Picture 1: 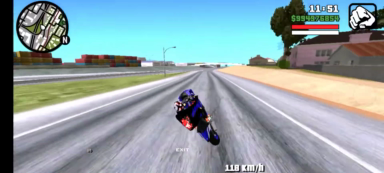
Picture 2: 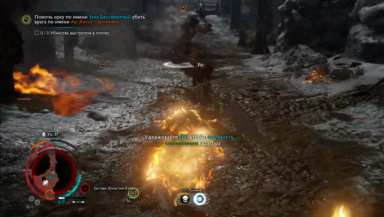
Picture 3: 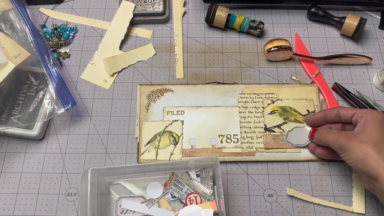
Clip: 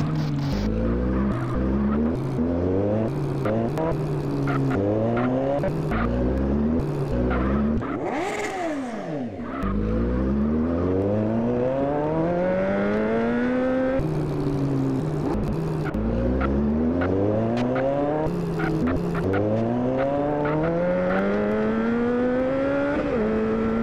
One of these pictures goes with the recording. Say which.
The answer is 1